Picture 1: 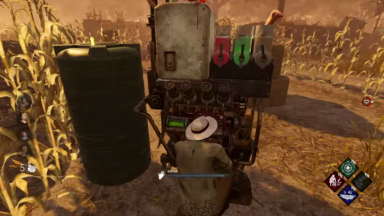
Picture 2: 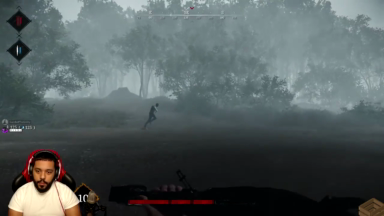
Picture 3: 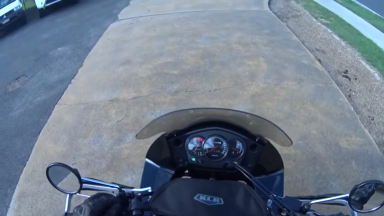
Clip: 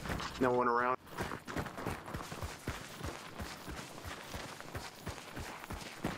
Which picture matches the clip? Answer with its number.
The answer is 2